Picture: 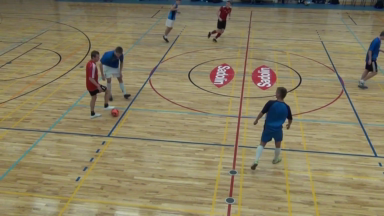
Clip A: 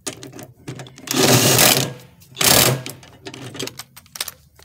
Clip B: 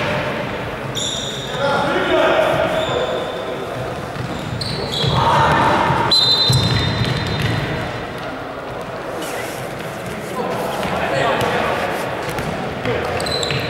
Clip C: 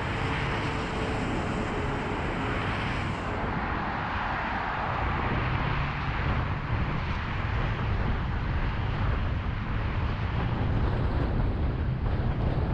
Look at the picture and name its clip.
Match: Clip B